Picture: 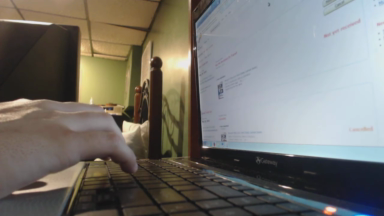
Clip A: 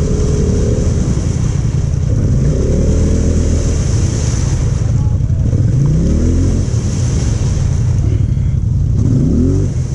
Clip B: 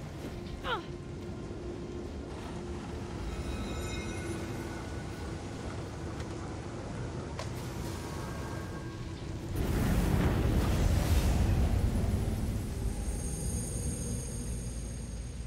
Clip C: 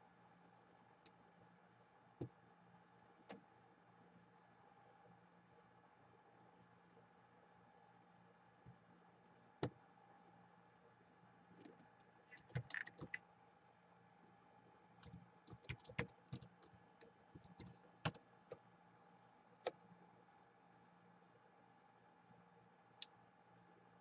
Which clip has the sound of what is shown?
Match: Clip C